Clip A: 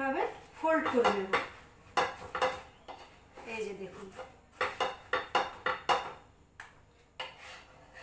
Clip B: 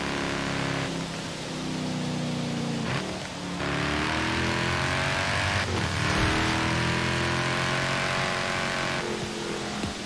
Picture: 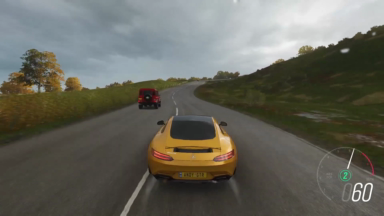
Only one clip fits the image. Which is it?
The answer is B